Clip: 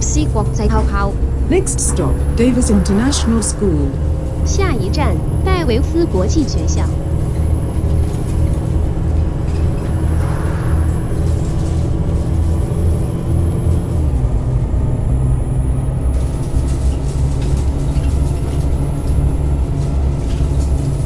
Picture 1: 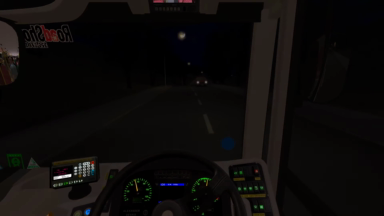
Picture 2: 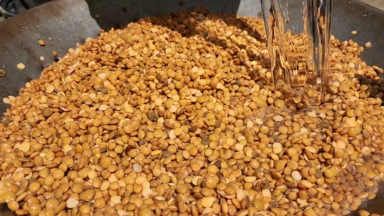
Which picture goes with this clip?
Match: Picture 1